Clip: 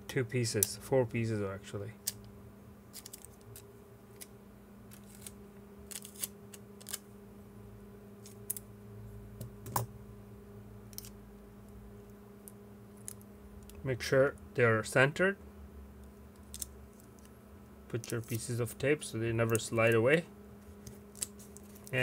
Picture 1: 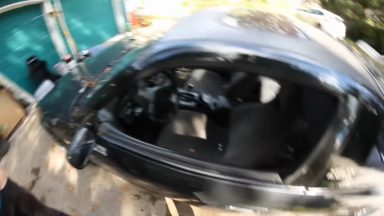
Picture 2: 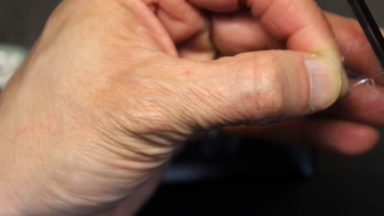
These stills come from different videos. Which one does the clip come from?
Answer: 2